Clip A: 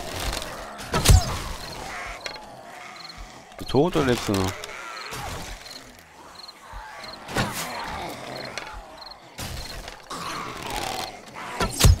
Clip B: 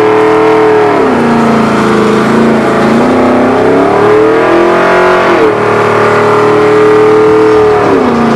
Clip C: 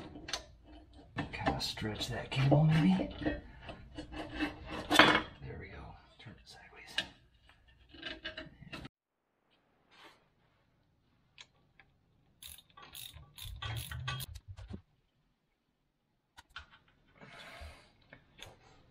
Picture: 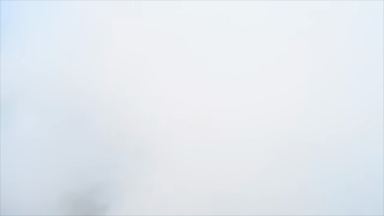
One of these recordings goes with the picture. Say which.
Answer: B